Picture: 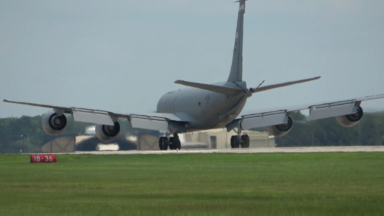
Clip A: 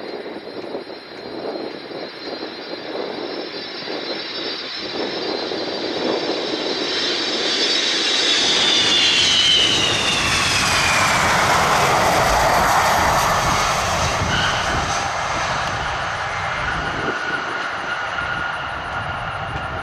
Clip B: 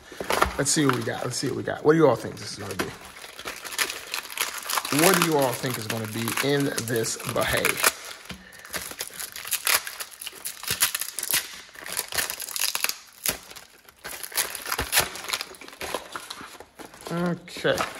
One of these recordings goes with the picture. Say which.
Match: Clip A